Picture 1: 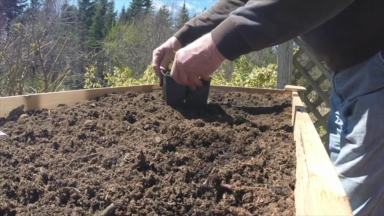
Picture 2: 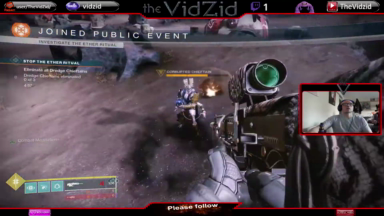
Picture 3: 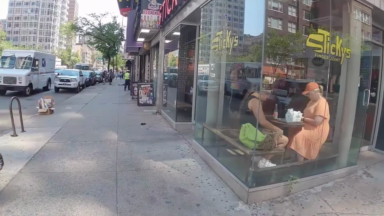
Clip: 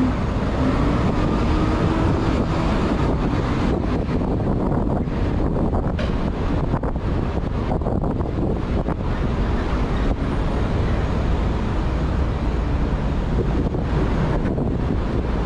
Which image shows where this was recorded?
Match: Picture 3